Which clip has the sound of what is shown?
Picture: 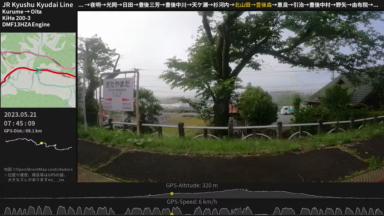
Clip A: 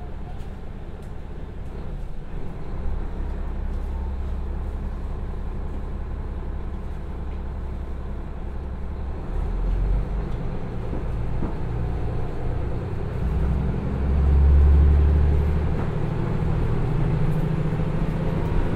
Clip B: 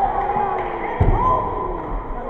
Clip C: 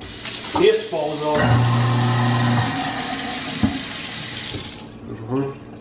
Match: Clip A